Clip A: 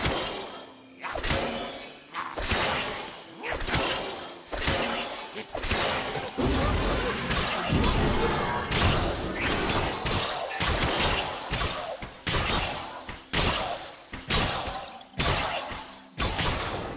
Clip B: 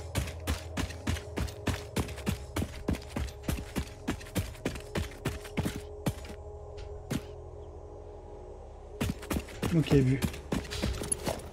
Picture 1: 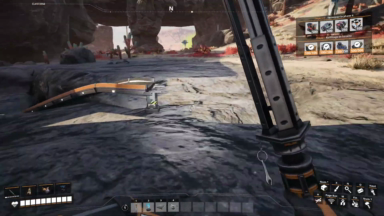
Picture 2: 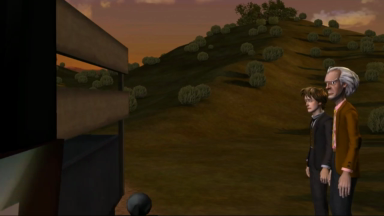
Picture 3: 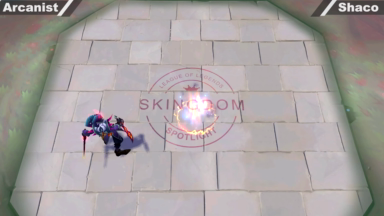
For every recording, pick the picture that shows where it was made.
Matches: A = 3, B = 1